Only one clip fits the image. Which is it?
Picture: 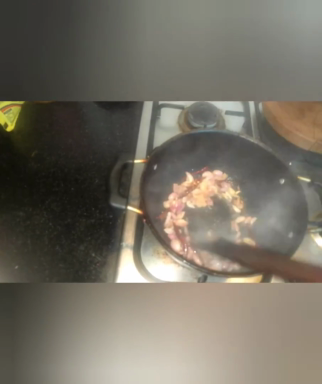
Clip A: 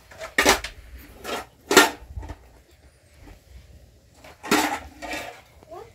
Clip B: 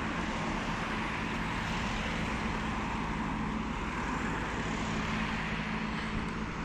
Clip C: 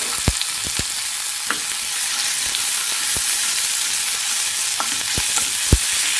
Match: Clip C